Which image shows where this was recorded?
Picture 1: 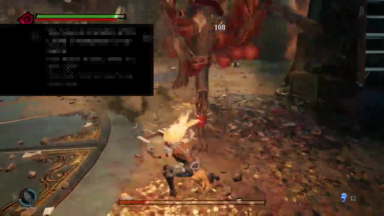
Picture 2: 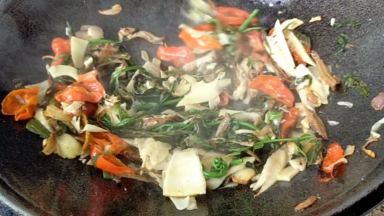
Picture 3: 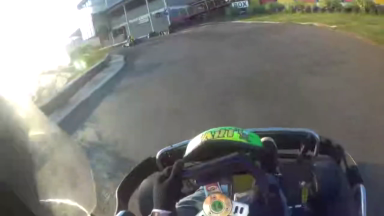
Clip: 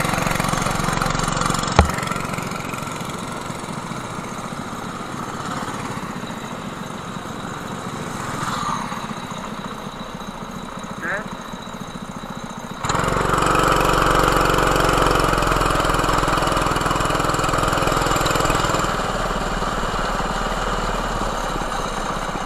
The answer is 3